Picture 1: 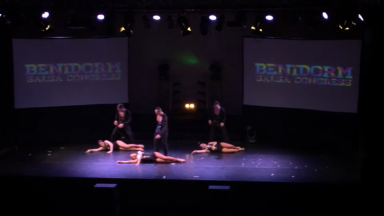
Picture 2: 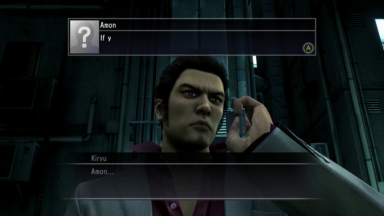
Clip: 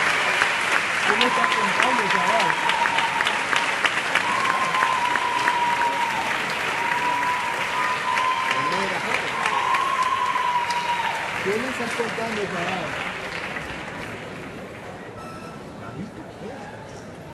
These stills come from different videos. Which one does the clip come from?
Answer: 1